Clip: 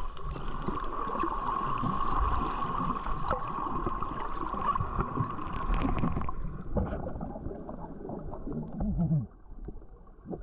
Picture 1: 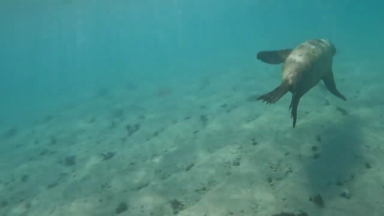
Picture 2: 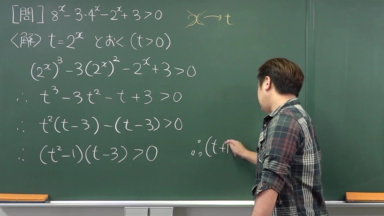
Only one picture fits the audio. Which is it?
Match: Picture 1